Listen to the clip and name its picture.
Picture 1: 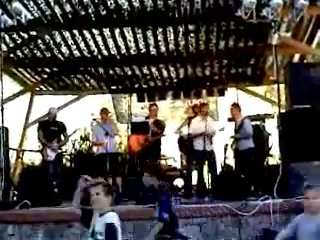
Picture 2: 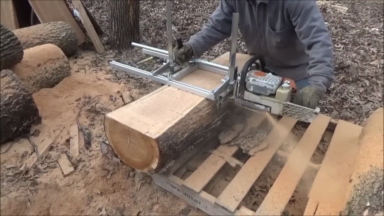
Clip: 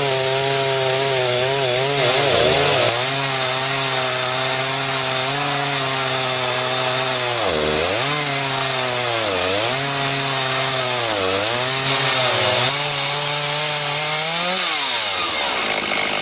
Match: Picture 2